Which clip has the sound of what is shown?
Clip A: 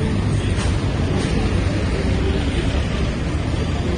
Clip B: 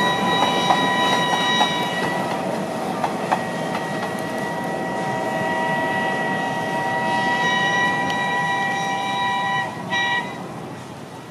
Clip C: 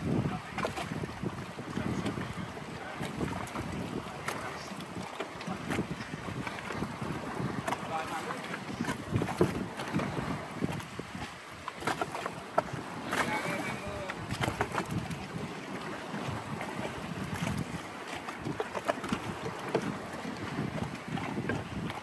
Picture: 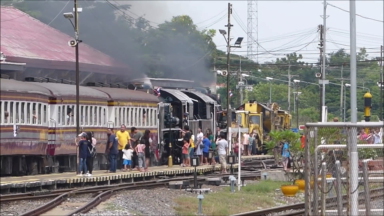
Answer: B